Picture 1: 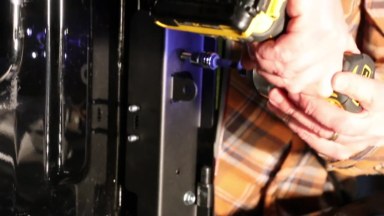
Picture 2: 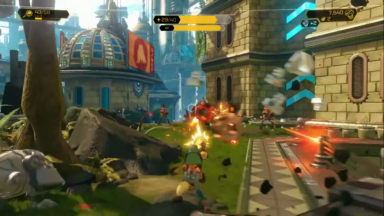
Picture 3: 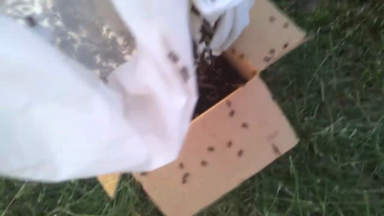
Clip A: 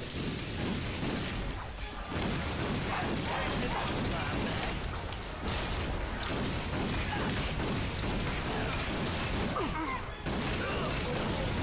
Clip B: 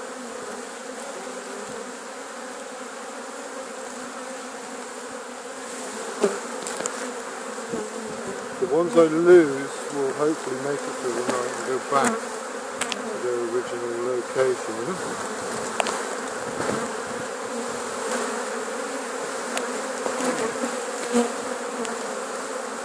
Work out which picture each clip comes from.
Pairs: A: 2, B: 3